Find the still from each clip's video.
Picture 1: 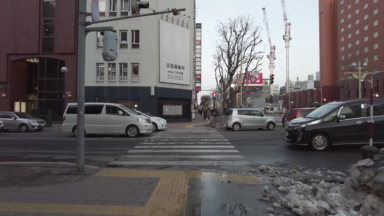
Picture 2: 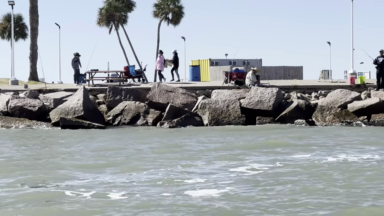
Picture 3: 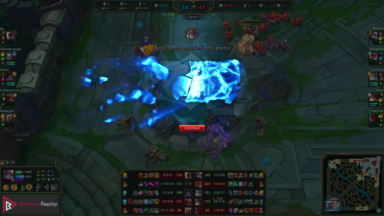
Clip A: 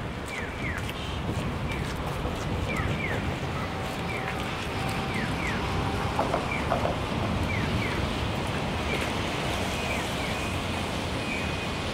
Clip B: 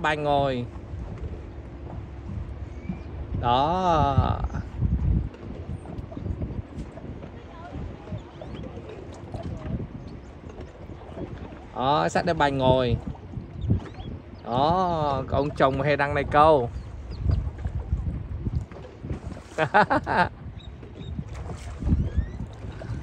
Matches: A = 1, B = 2